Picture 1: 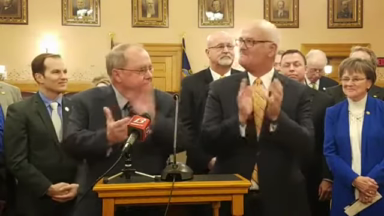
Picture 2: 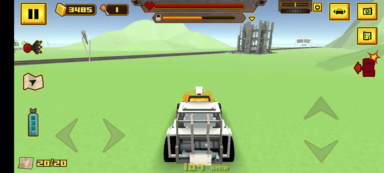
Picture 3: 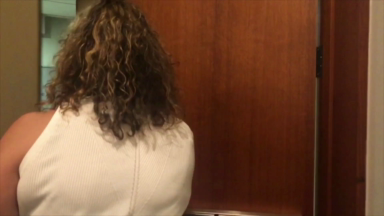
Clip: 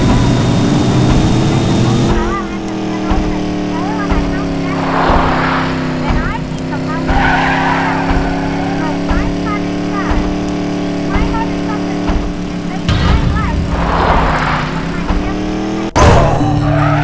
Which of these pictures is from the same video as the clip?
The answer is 2